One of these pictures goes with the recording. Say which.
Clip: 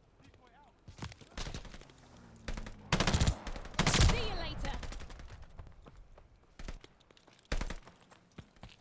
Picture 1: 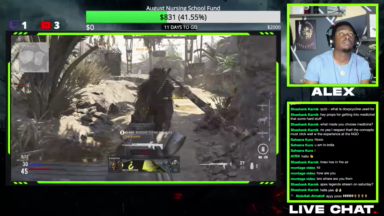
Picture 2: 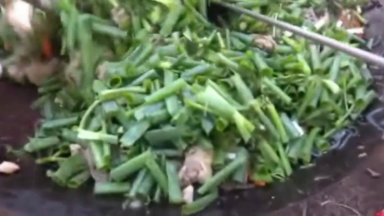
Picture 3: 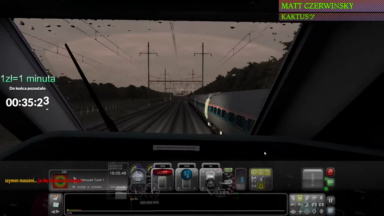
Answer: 1